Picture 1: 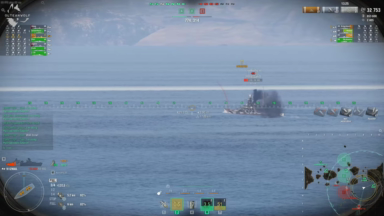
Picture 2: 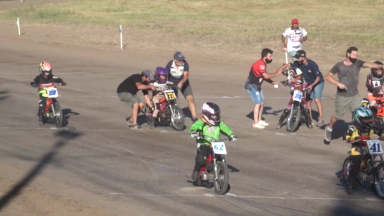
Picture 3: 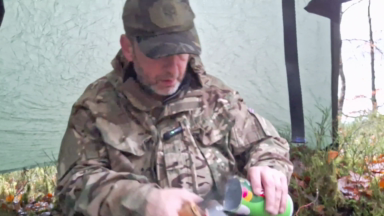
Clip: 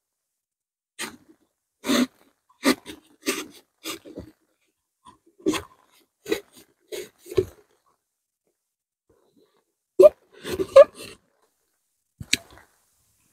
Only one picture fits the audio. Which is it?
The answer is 3